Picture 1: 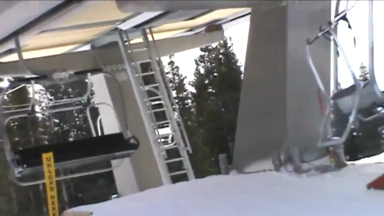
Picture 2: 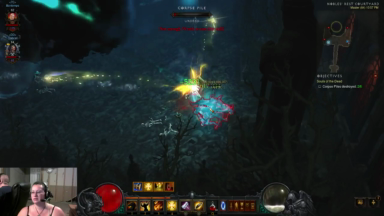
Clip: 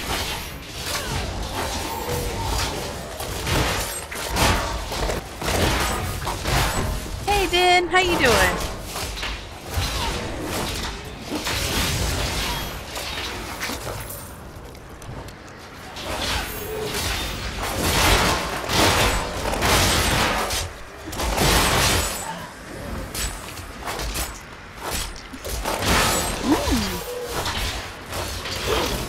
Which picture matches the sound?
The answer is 2